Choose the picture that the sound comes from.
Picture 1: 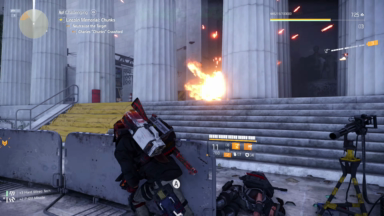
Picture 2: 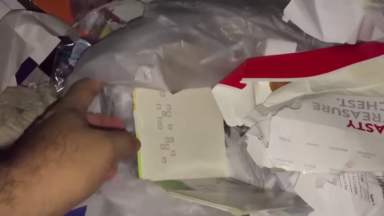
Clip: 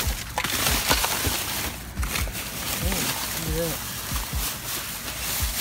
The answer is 2